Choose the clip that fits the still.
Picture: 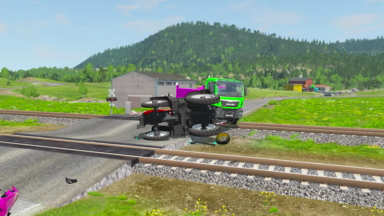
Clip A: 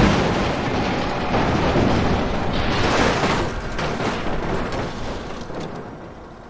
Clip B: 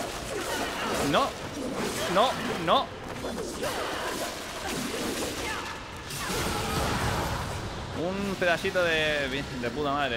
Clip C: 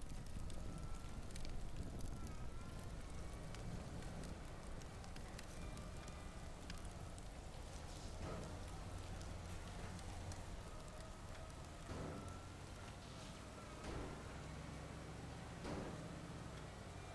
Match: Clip A